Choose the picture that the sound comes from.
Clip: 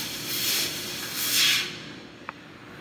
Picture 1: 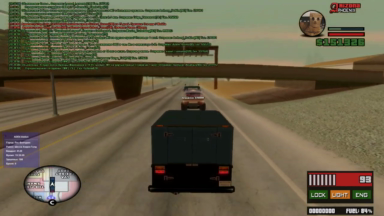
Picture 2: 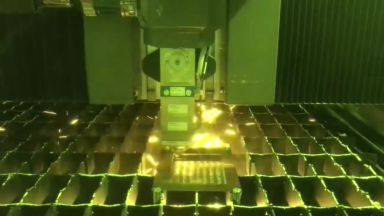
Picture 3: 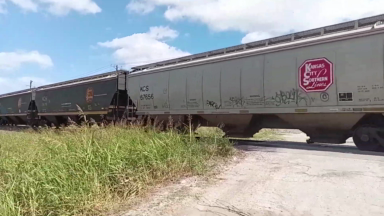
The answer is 2